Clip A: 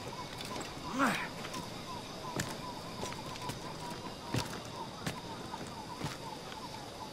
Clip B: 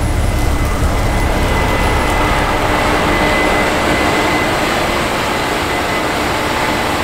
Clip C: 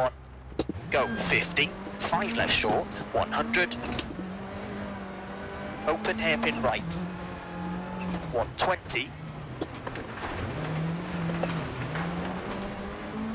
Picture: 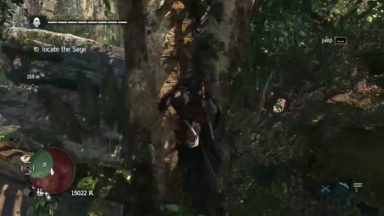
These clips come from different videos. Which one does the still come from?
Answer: A